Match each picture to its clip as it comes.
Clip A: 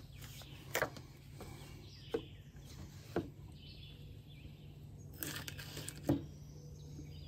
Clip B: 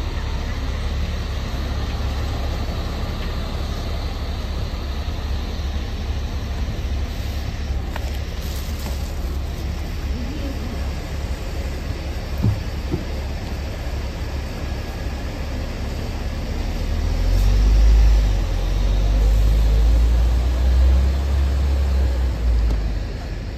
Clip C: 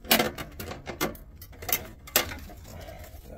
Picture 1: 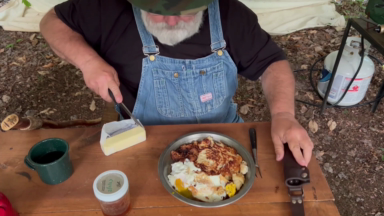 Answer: A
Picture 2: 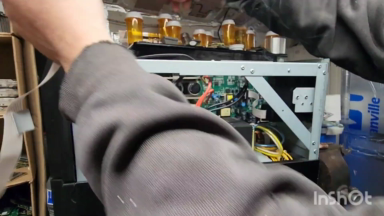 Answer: C